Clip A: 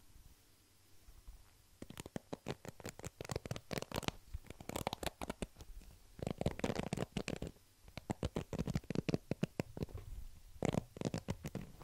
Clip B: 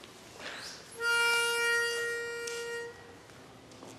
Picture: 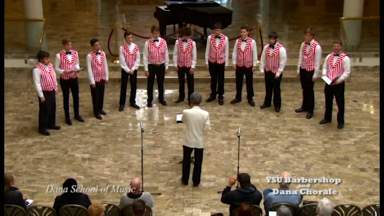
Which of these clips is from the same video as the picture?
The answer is B